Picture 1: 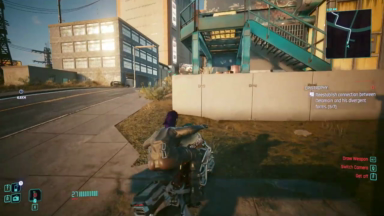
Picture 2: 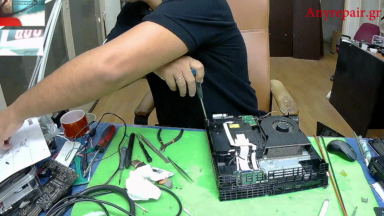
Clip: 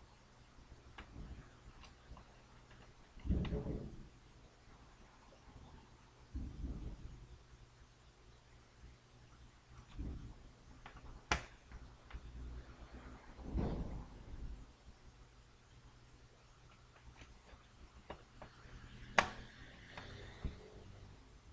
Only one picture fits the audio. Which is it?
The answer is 2